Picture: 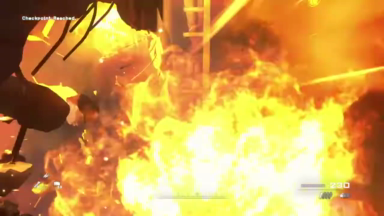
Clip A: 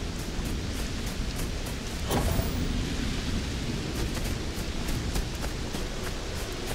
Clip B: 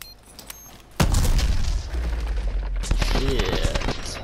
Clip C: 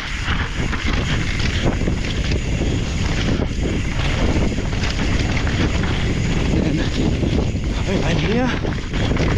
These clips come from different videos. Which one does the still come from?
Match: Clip B